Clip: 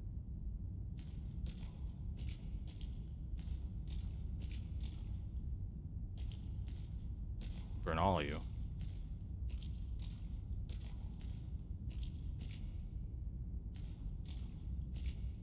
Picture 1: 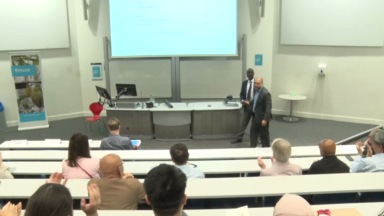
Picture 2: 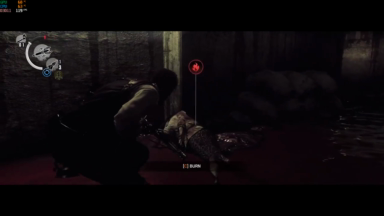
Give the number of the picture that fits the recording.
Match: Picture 2